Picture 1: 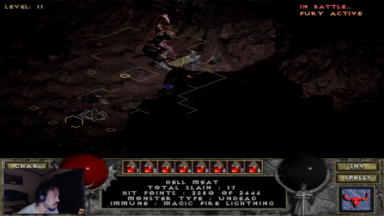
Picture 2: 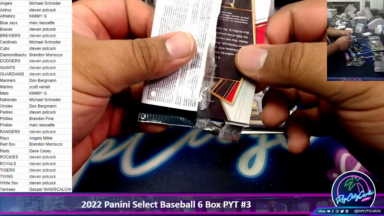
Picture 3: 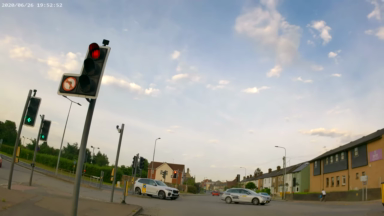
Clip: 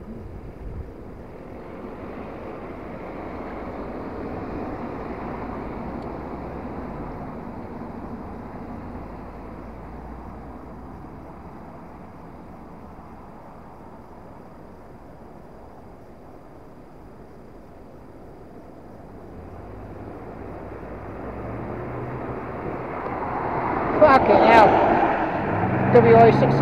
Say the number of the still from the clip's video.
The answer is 3